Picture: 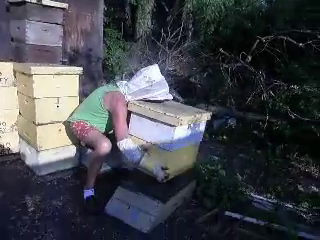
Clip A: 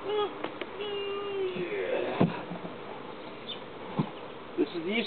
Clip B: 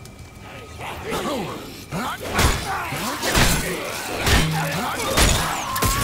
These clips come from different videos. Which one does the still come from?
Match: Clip A